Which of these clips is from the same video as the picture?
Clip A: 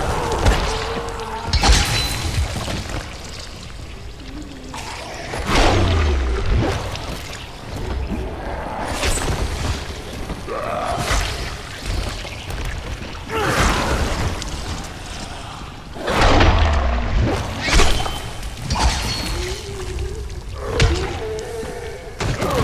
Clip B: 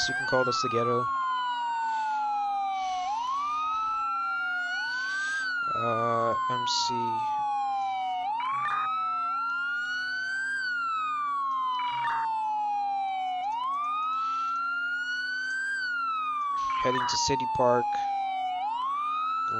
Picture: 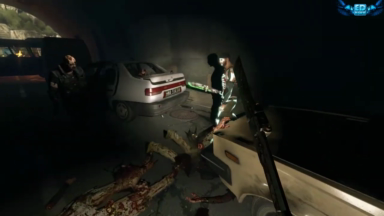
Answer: A